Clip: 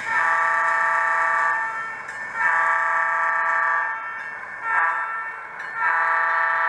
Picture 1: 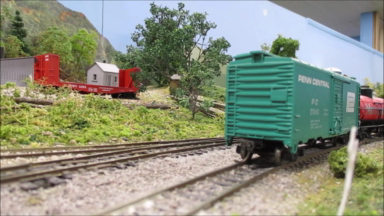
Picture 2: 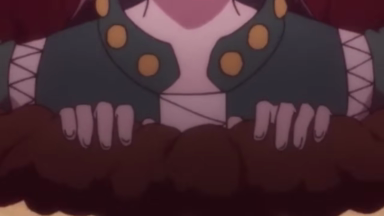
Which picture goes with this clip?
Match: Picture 1